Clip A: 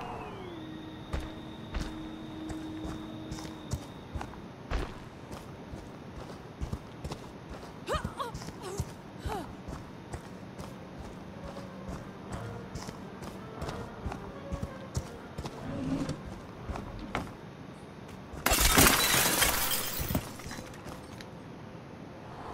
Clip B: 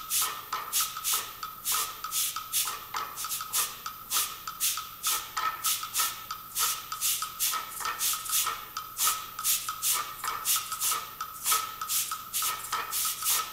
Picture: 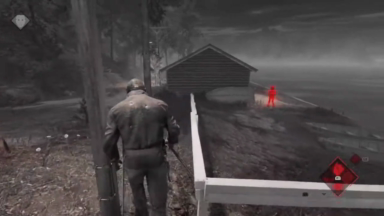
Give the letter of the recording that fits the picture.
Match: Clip A